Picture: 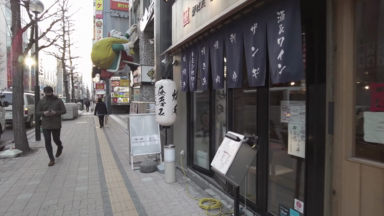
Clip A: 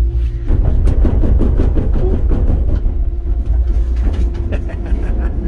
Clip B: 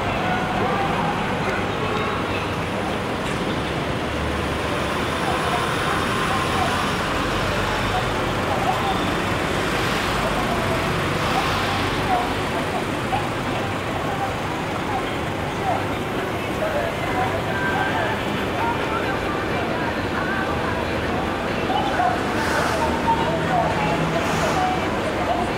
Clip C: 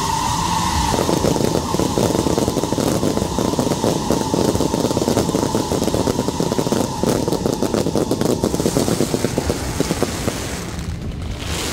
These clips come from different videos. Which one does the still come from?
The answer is B